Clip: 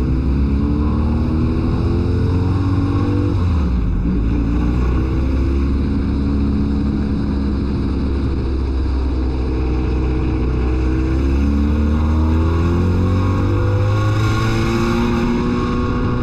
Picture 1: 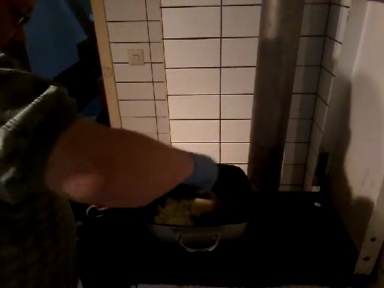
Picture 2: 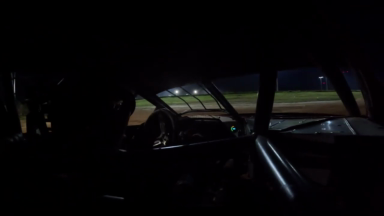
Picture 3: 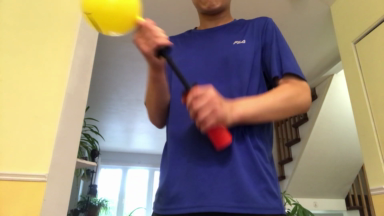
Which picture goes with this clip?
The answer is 2